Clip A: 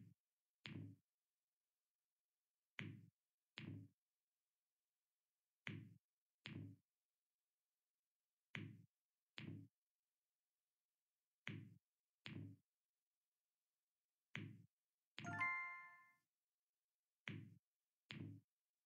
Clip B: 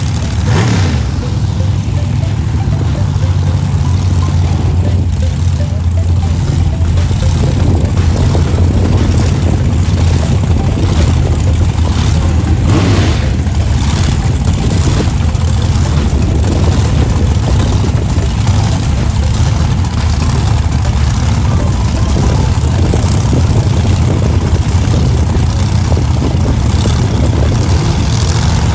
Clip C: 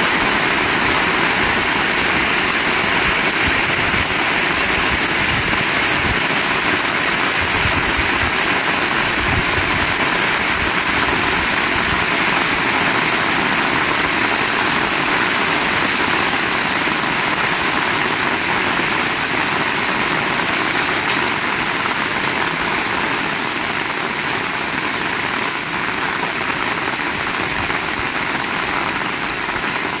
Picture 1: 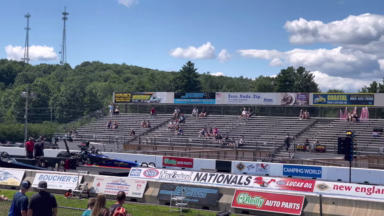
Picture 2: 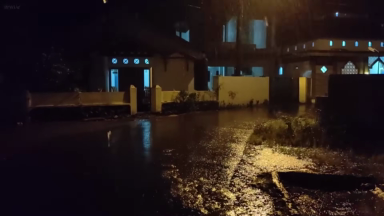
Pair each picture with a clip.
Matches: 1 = B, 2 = C